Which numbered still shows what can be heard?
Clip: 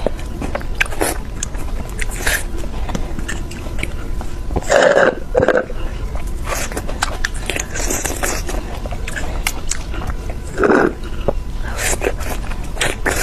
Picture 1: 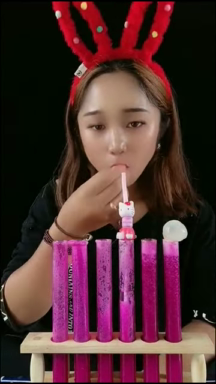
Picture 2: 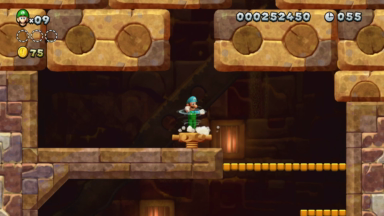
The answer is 1